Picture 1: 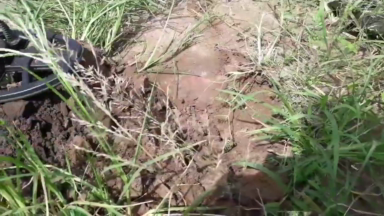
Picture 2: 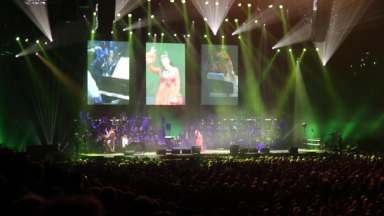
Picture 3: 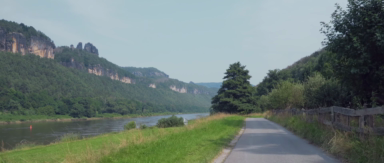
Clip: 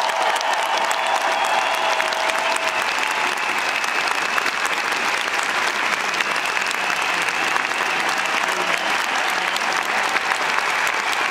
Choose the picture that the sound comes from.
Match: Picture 2